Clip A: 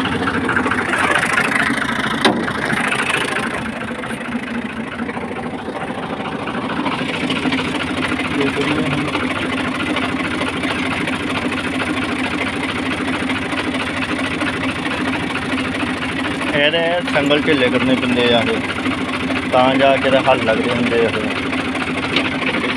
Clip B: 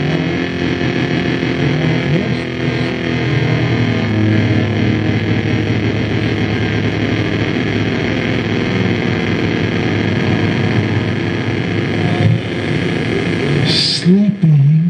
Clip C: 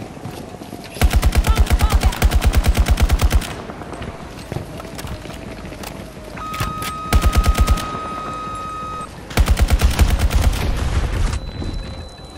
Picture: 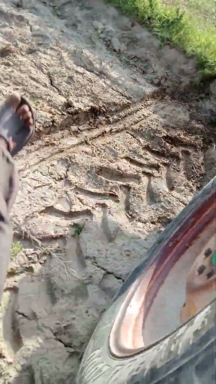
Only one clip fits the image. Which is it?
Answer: A